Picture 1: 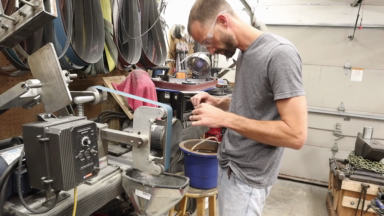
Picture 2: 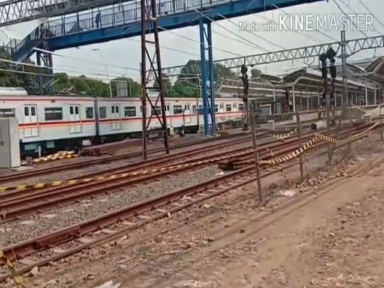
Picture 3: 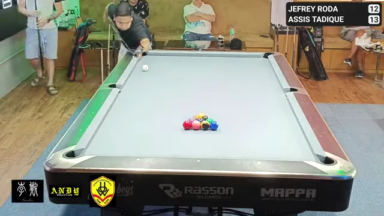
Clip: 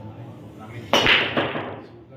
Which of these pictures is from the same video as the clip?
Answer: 3